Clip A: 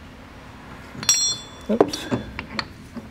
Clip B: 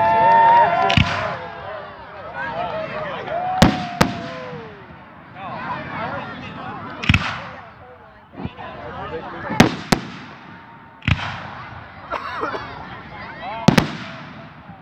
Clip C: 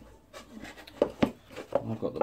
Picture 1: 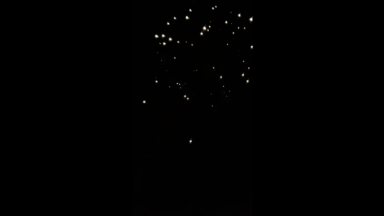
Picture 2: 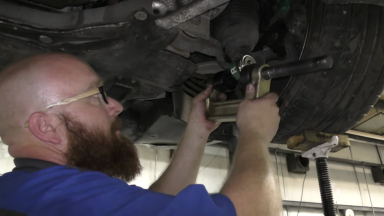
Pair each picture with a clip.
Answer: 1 B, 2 A